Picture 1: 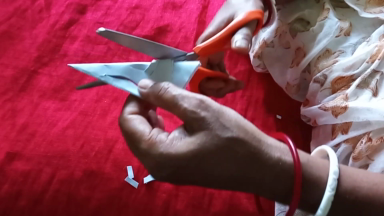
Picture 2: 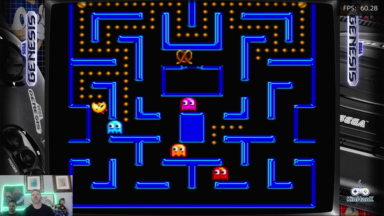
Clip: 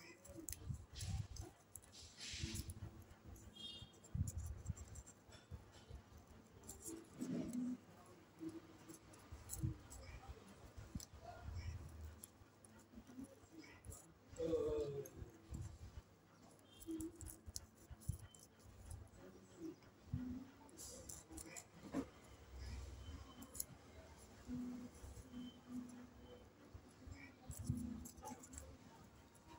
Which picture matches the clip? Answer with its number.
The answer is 1